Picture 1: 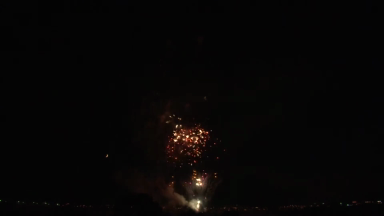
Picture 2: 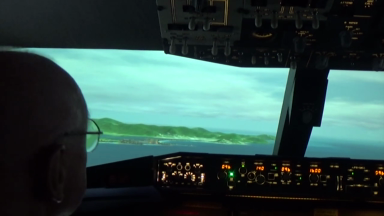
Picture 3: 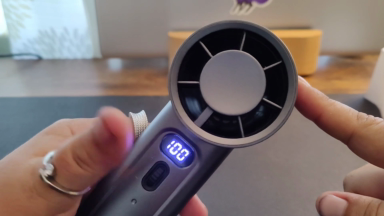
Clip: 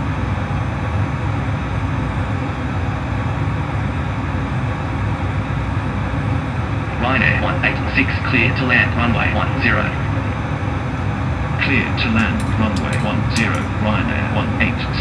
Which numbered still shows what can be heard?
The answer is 2